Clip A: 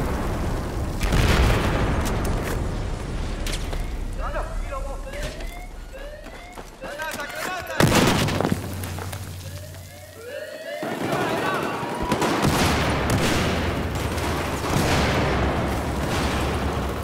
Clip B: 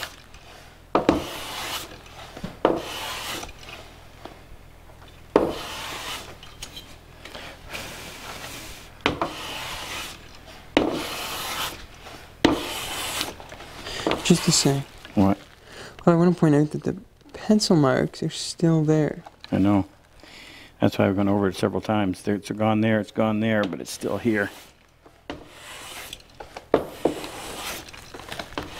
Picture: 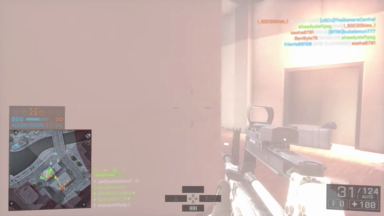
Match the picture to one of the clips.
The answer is A